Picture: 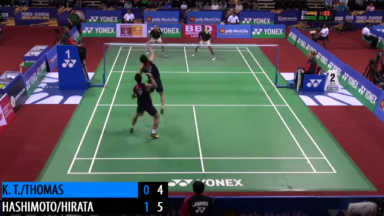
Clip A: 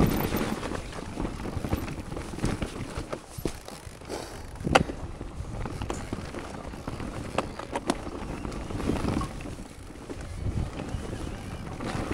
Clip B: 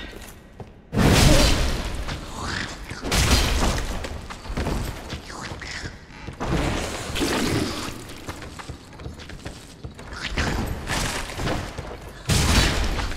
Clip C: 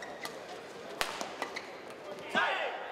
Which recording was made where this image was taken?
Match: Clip C